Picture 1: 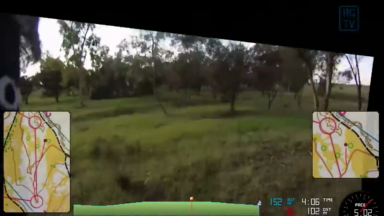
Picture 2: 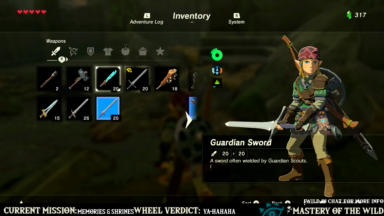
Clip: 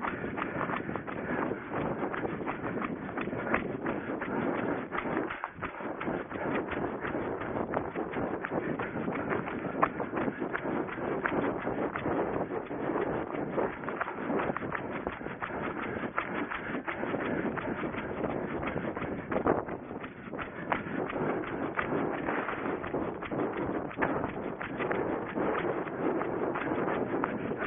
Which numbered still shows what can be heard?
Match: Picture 1